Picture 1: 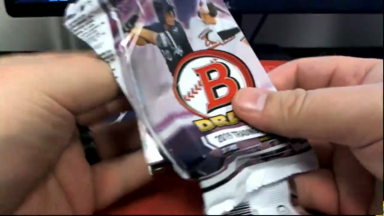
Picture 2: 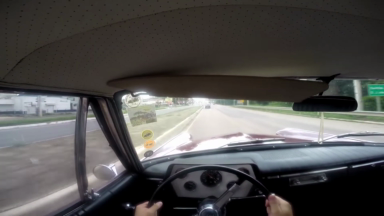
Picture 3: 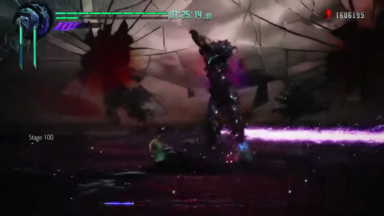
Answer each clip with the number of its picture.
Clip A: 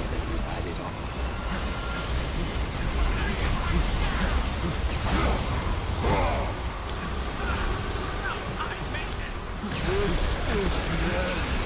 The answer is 3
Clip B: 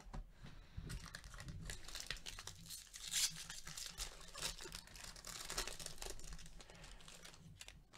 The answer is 1